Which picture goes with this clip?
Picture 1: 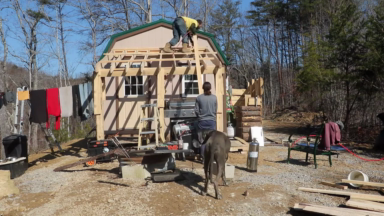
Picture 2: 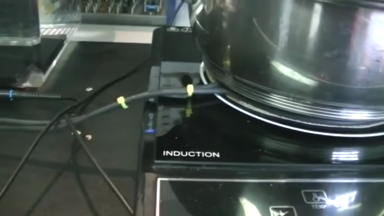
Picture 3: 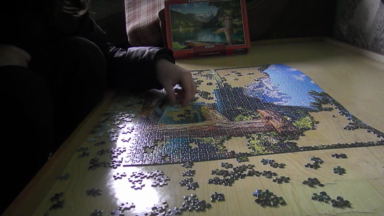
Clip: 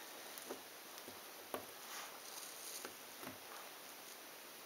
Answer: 3